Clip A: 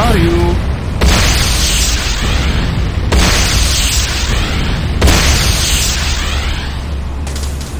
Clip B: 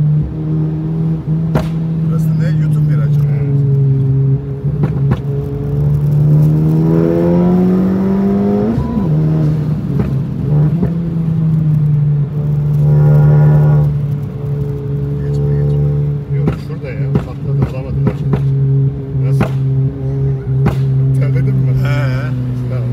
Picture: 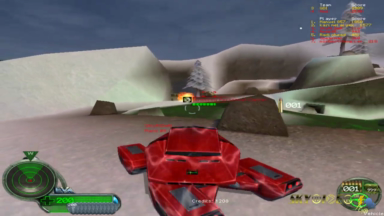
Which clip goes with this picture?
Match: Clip A